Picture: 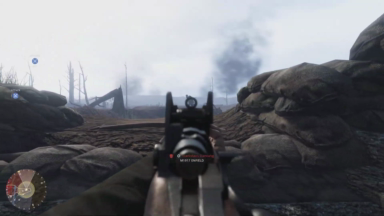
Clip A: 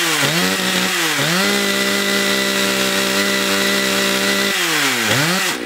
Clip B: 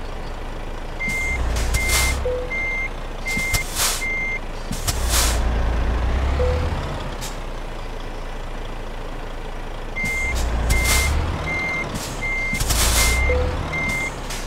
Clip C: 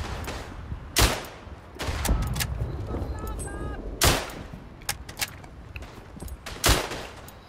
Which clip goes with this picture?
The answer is C